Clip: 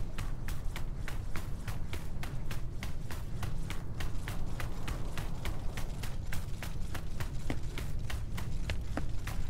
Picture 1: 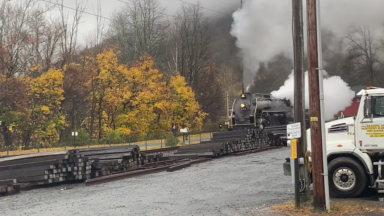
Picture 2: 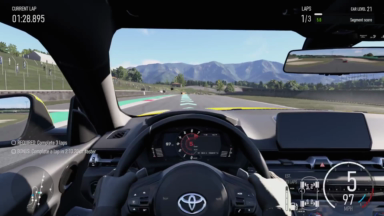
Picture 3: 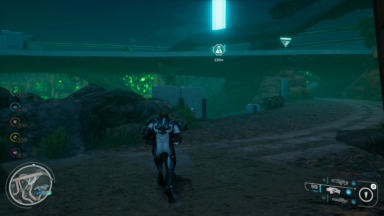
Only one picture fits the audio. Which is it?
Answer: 3